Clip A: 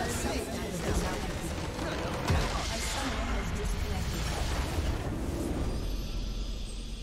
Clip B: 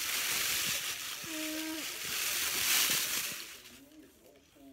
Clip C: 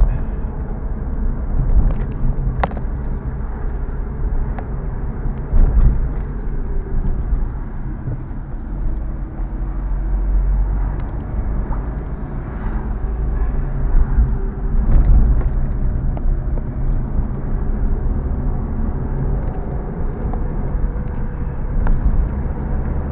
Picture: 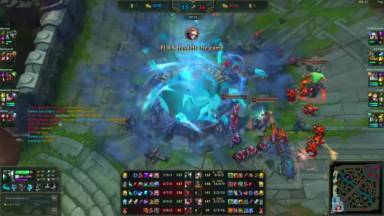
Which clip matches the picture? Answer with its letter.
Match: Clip A